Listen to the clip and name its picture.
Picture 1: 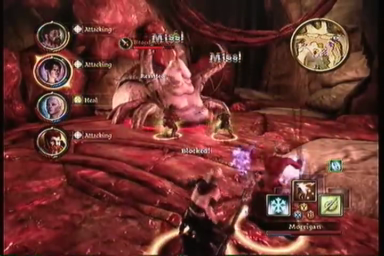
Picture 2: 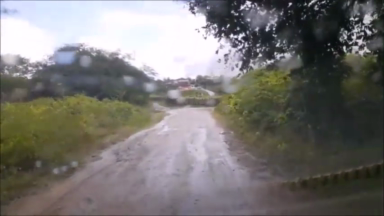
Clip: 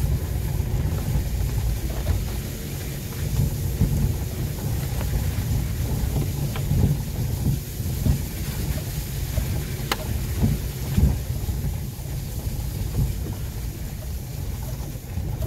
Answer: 2